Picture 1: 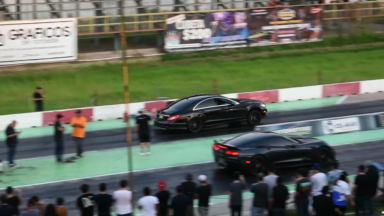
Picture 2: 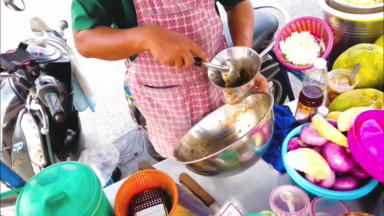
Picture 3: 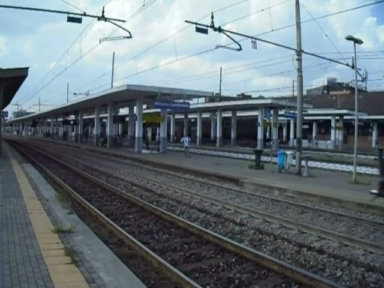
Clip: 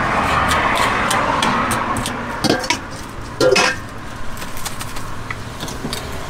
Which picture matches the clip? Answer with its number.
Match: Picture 2